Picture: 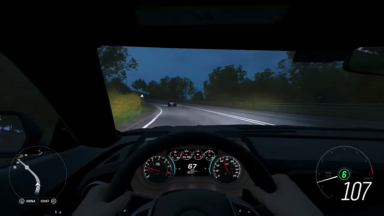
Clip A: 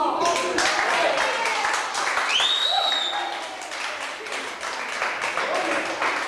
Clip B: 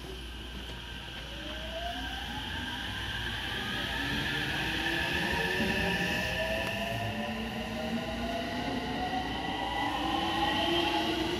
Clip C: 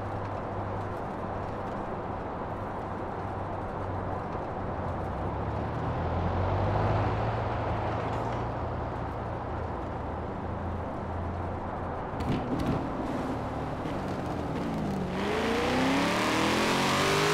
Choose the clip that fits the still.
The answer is C